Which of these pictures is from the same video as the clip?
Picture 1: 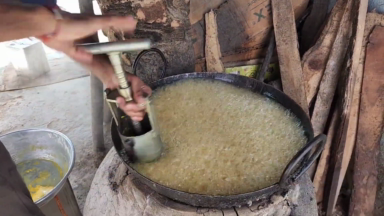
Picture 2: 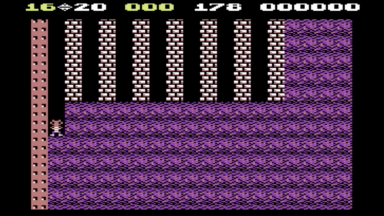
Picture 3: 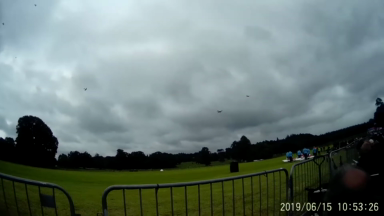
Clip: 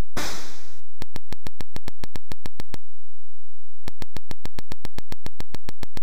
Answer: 2